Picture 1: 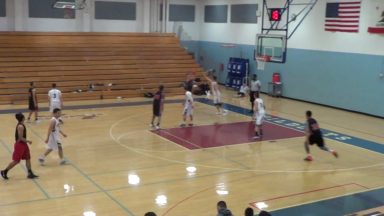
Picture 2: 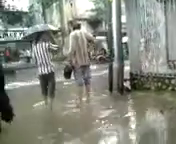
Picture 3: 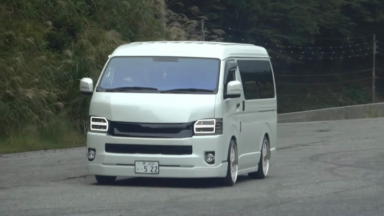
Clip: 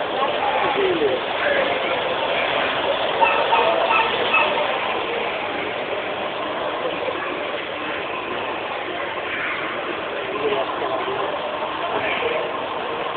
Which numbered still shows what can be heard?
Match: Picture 2